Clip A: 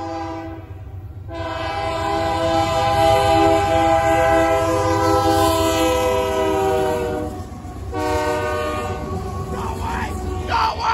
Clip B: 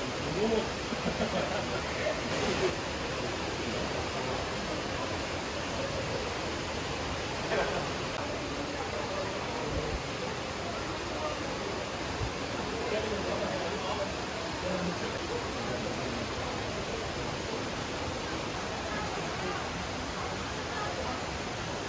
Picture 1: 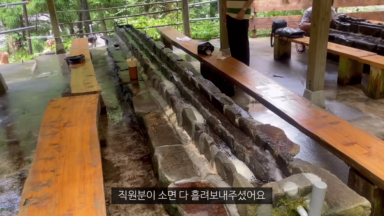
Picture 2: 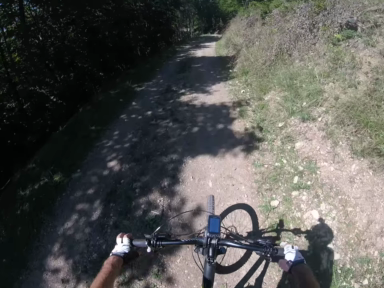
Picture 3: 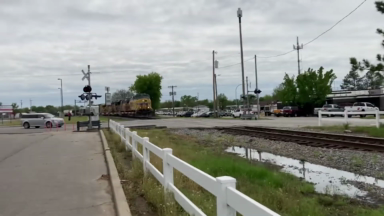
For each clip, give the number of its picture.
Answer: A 3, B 1